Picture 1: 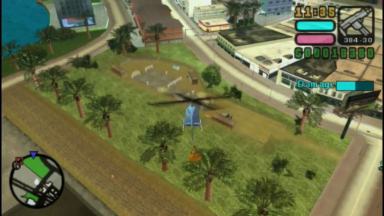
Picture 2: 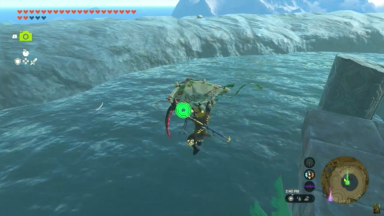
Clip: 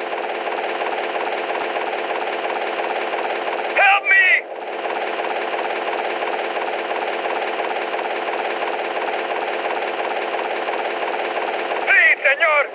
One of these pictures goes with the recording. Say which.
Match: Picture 1